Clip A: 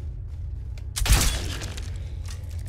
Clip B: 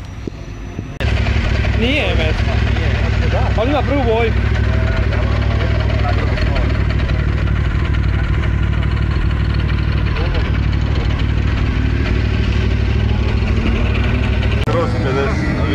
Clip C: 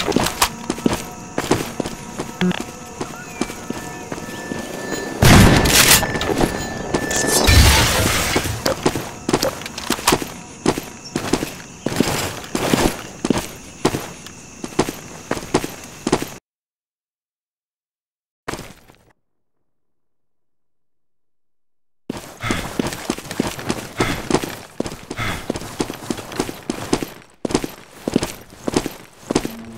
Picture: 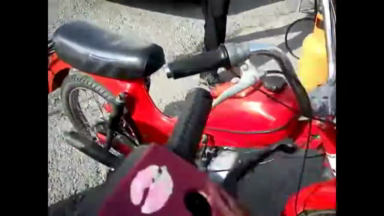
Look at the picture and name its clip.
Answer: B